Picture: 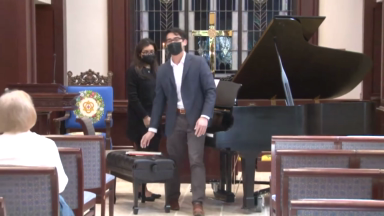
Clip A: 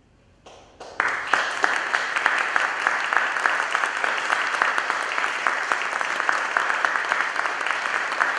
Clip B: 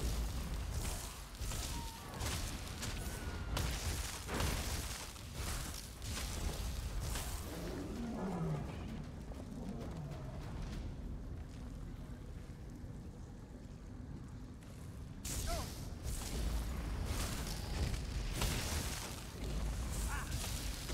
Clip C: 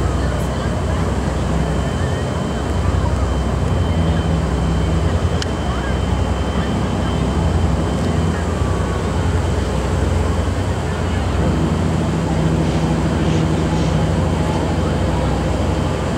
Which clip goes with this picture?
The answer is A